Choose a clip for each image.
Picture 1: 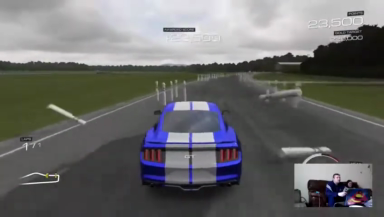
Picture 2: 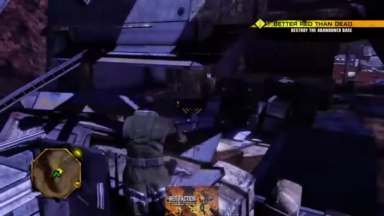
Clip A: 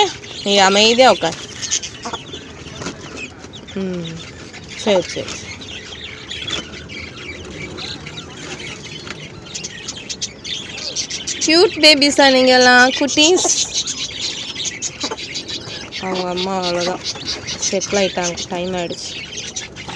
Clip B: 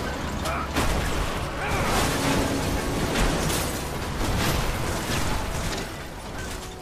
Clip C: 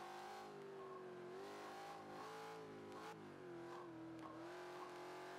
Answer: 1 C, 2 B